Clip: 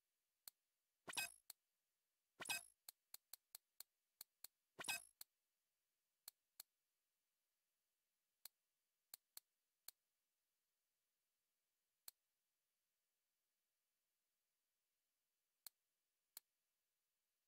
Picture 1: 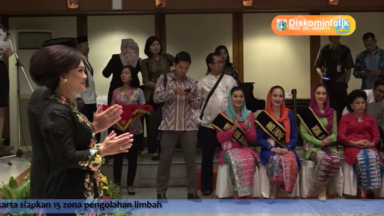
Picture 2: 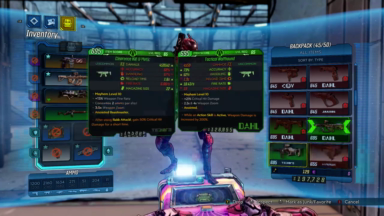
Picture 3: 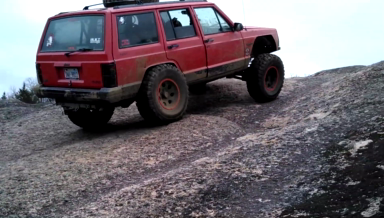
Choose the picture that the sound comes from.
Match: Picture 2